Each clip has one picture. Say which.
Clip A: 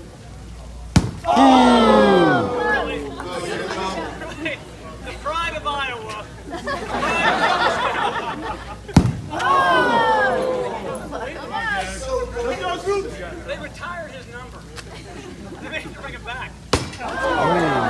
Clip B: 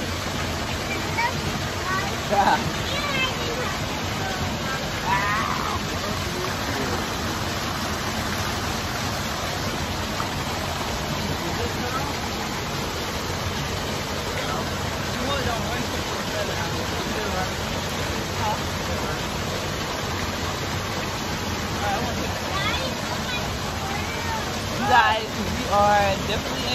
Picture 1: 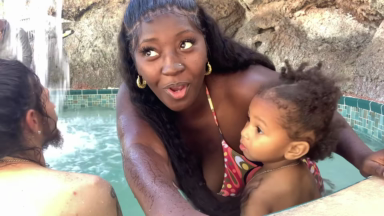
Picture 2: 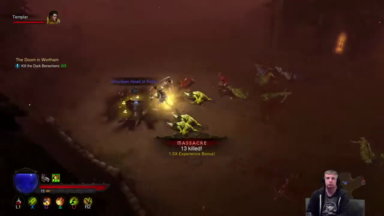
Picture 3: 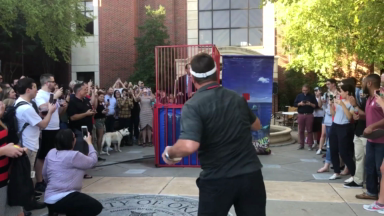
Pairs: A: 3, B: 1